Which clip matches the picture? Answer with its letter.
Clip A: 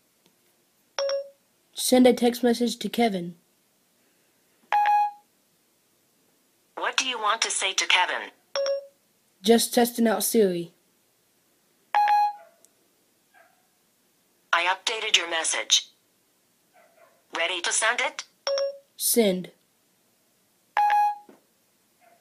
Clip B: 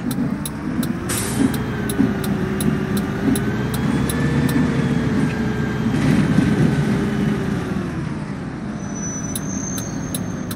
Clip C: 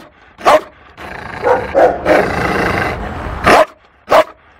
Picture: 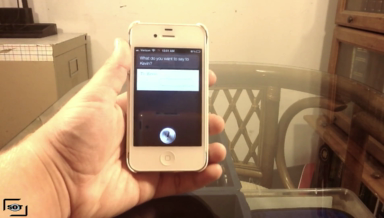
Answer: A